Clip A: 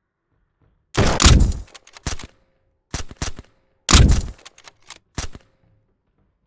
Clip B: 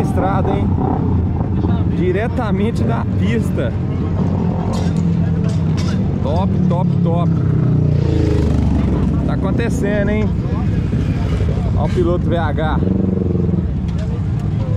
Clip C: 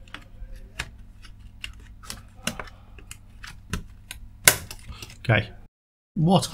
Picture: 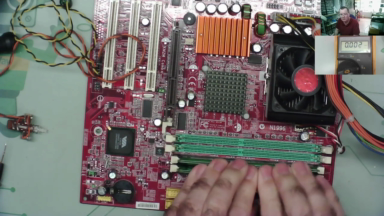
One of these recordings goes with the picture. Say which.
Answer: C